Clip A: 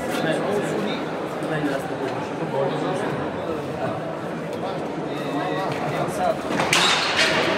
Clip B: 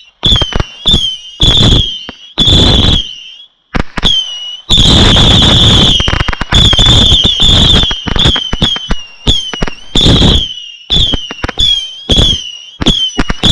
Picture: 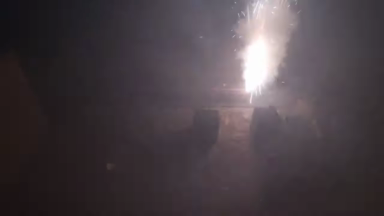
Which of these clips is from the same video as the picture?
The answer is B